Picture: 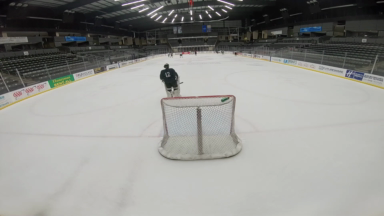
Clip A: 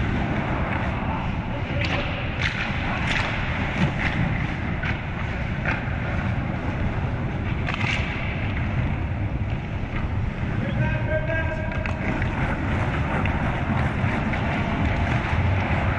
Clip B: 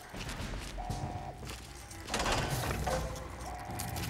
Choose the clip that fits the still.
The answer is A